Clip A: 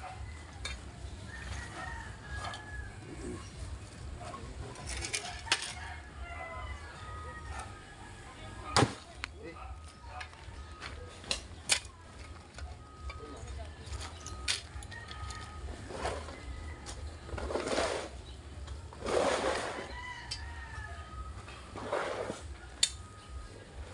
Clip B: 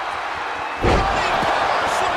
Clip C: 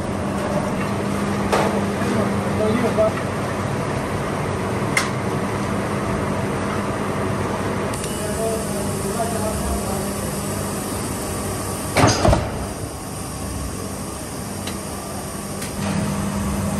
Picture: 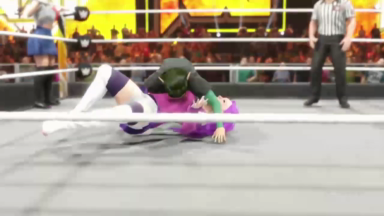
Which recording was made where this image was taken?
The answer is B